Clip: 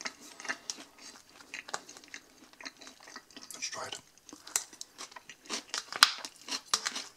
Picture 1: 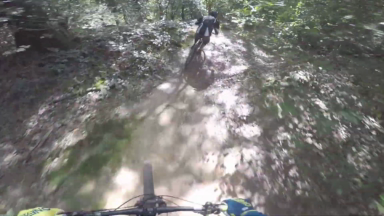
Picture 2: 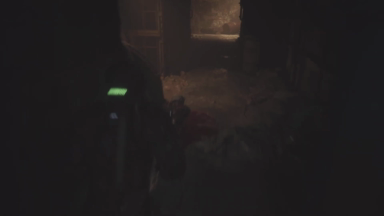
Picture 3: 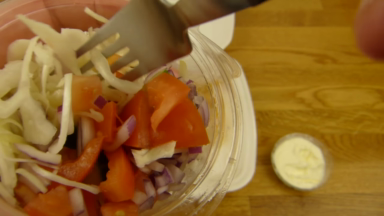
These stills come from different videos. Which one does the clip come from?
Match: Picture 3